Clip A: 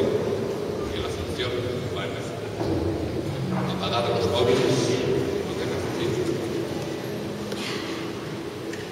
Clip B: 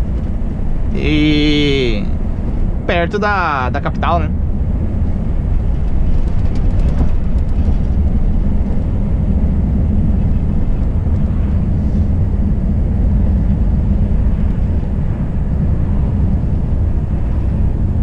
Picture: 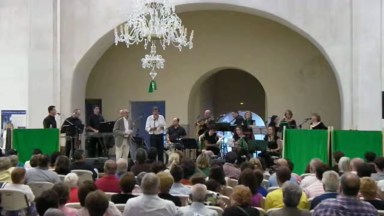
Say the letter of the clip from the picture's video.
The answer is A